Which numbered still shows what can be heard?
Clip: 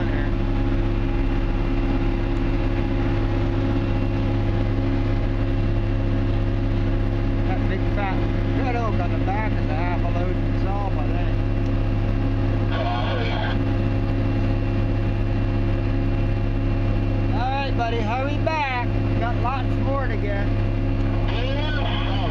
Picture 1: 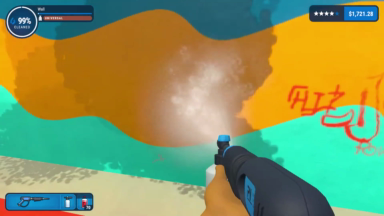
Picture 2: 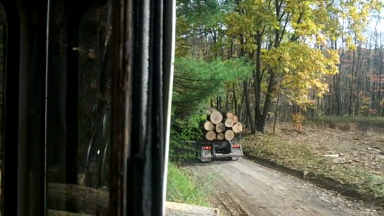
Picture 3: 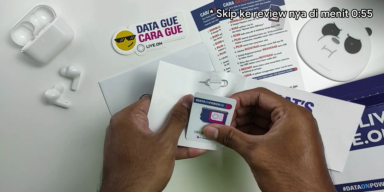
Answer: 2